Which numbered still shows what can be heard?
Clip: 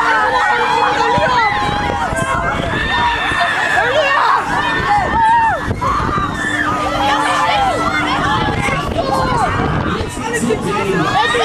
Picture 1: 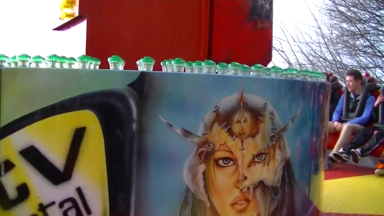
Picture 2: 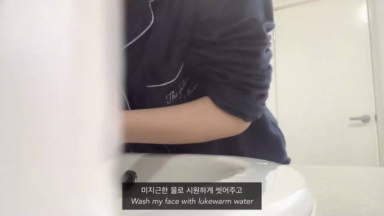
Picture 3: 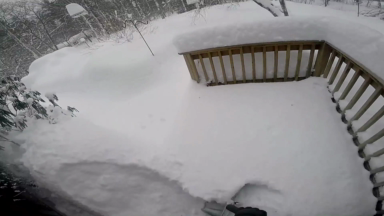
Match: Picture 1